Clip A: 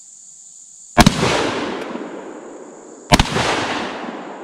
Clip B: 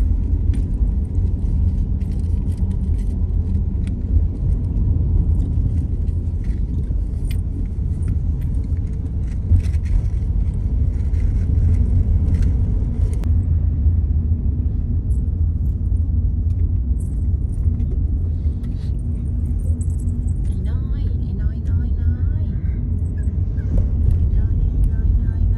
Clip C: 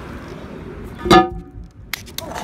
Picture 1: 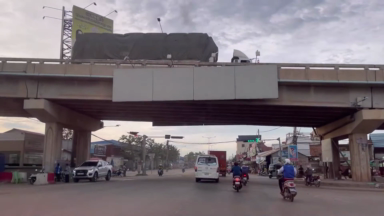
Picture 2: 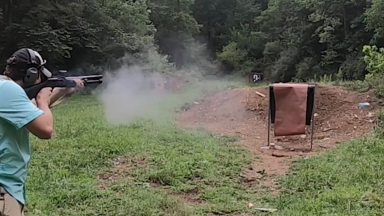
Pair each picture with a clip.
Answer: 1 B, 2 A